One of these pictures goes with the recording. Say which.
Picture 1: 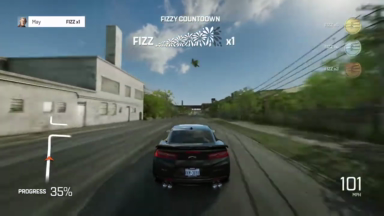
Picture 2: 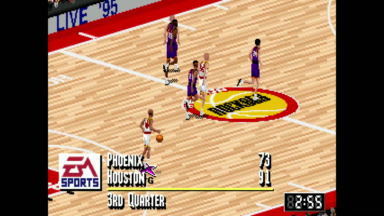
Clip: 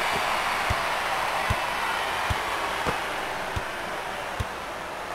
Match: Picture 2